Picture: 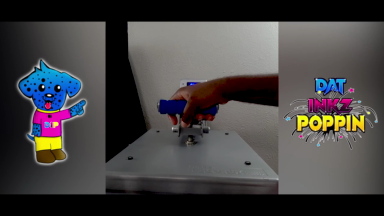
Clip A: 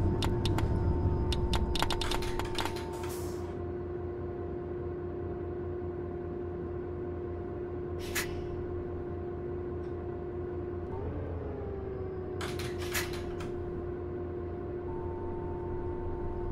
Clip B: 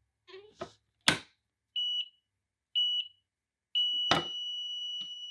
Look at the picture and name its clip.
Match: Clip B